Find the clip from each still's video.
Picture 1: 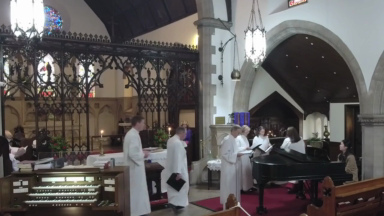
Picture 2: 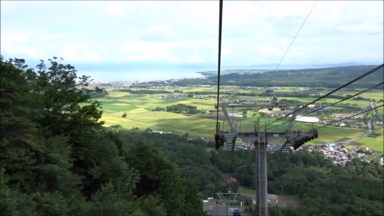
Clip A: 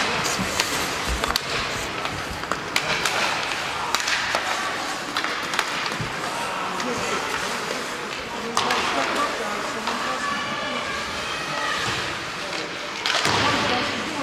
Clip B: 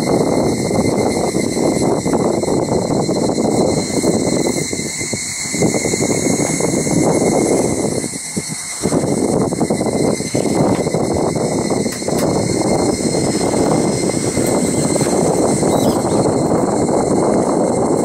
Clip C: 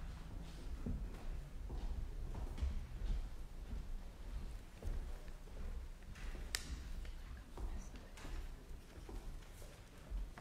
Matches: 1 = C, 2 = B